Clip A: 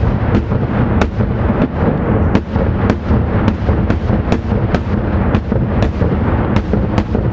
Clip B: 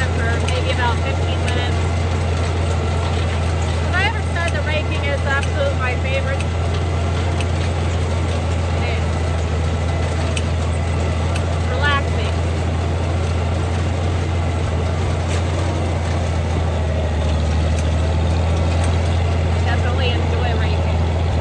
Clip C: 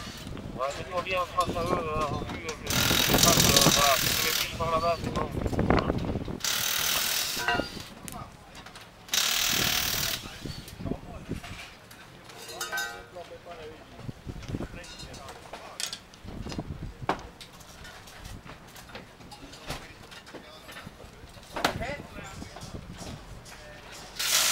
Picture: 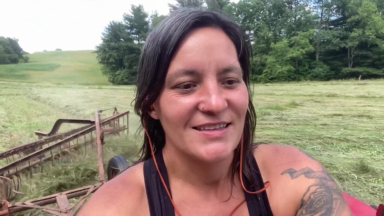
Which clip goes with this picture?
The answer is B